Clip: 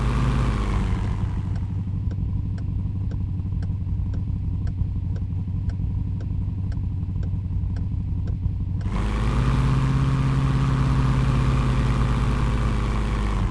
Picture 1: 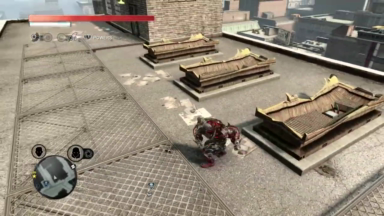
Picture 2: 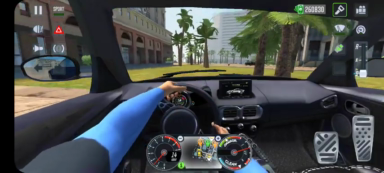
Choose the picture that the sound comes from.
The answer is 2